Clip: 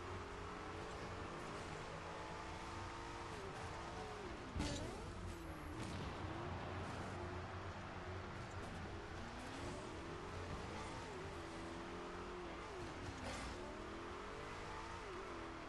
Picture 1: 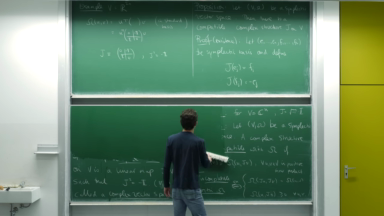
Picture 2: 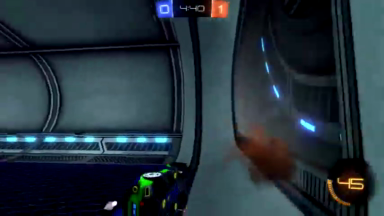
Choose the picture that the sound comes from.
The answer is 2